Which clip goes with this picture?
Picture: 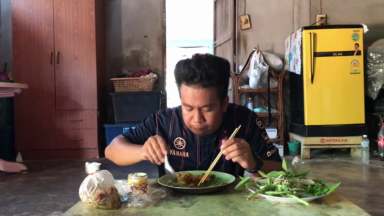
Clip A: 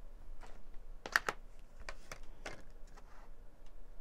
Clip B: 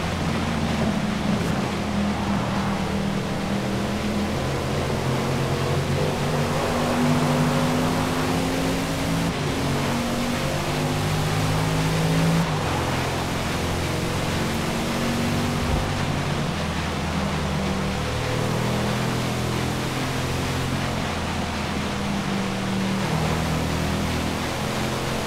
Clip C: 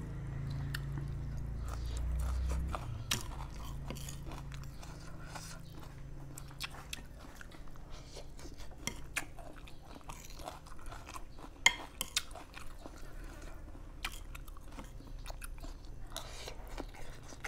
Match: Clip C